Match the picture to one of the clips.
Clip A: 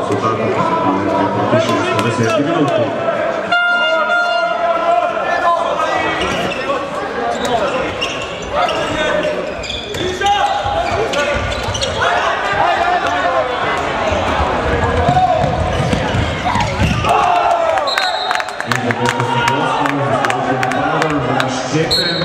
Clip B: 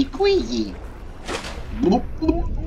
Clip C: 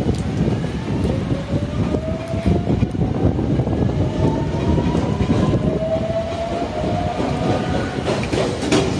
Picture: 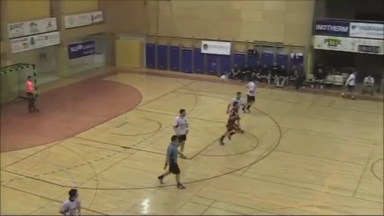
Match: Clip A